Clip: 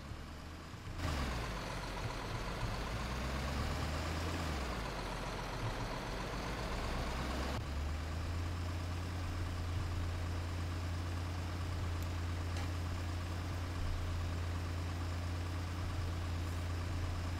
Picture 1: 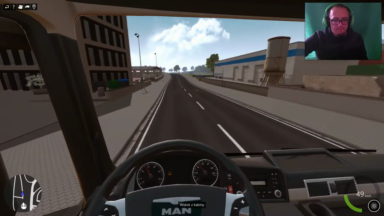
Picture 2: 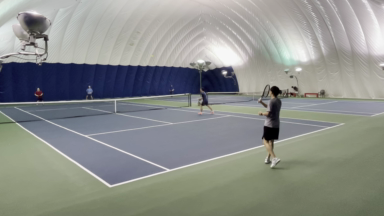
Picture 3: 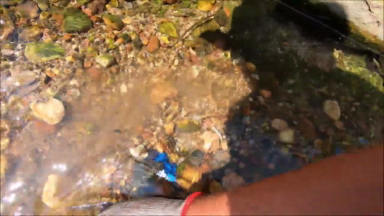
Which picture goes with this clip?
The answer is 1